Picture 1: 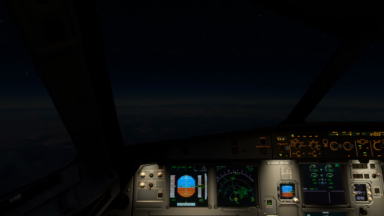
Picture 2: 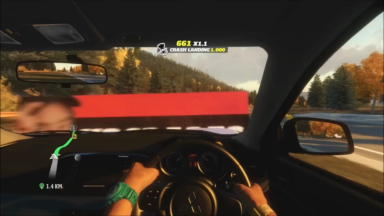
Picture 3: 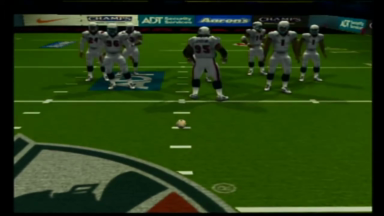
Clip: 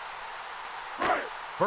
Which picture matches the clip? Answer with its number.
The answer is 3